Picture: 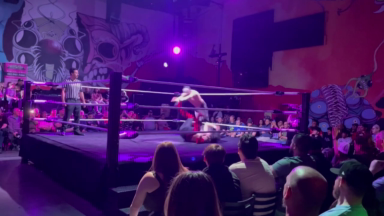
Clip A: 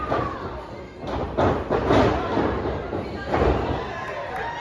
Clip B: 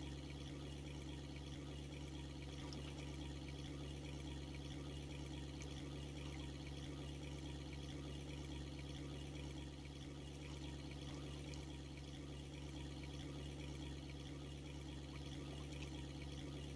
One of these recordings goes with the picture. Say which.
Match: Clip A